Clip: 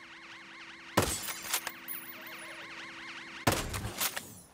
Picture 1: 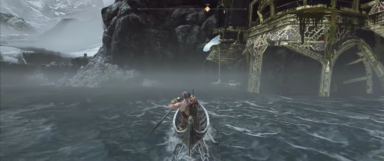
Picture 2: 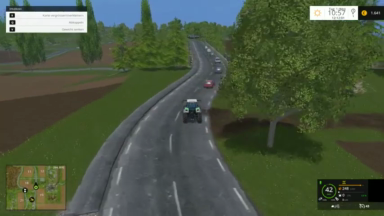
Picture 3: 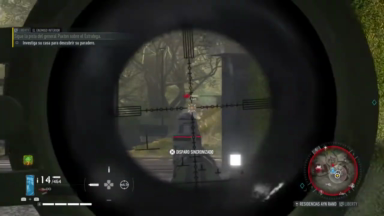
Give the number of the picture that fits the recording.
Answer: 3